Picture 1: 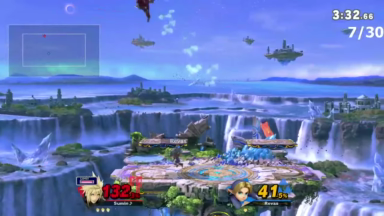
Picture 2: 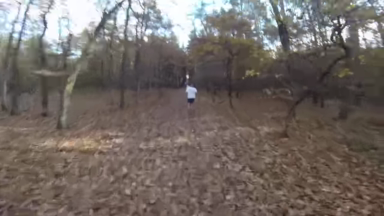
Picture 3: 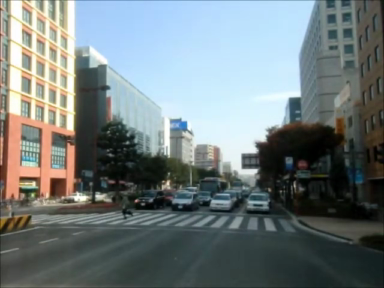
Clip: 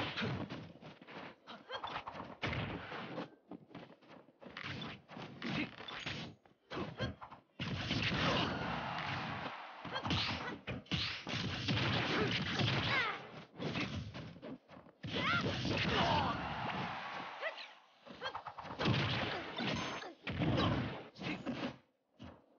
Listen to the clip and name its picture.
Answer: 1